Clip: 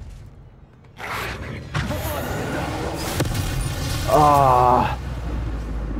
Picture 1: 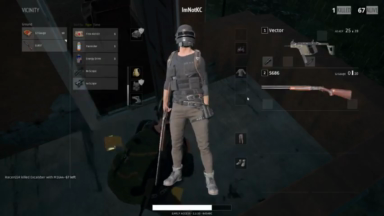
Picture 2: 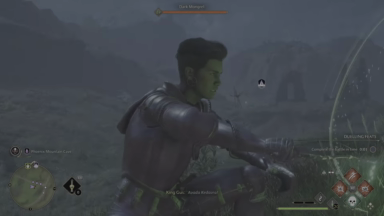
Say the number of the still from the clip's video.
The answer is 2